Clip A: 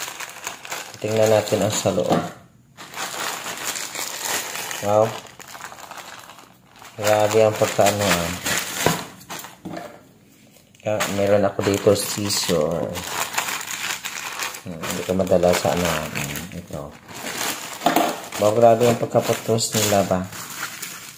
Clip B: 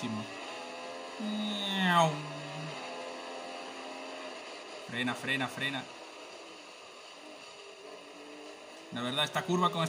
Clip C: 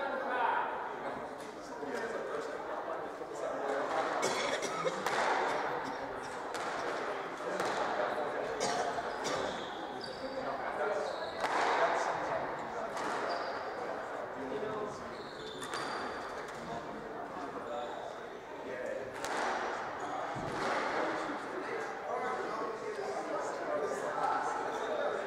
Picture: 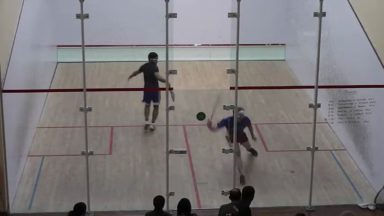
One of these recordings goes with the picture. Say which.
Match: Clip C